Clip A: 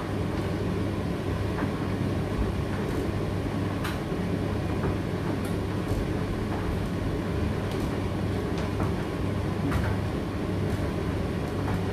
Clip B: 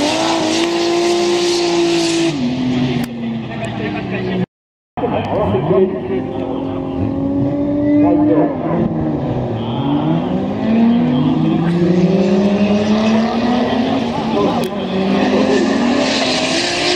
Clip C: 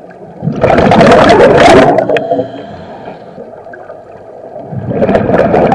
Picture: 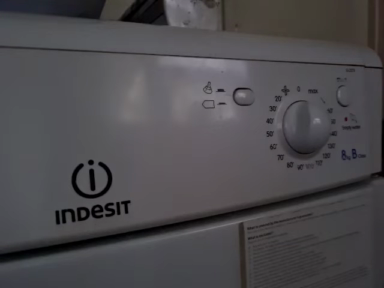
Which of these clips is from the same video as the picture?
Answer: A